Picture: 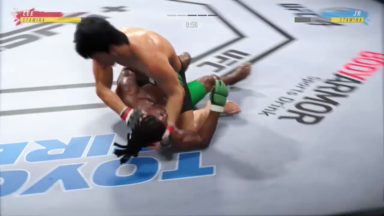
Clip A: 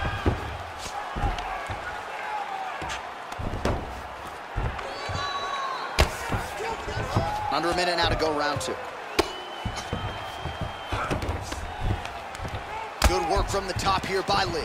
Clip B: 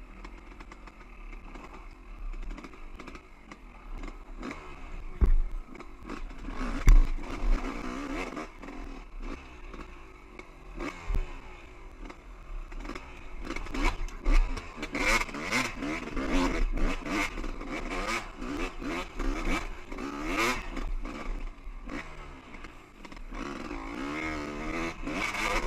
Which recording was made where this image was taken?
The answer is A